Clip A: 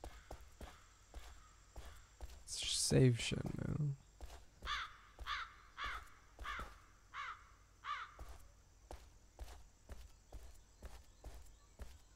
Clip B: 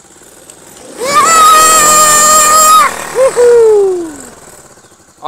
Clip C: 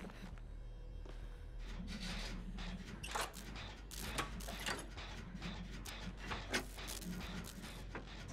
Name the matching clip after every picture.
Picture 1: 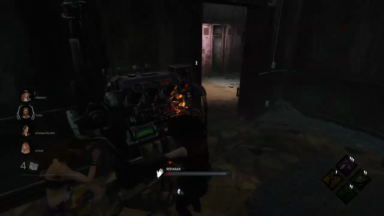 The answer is C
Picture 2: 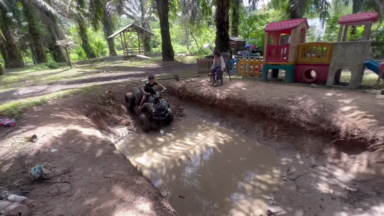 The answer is B